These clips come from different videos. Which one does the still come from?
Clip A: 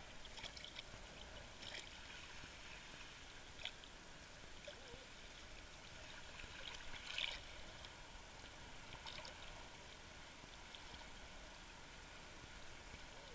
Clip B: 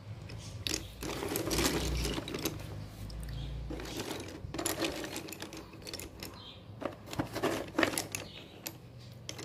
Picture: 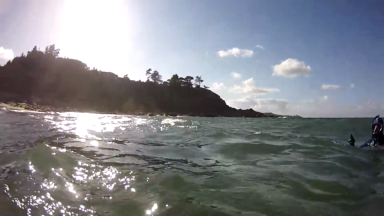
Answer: A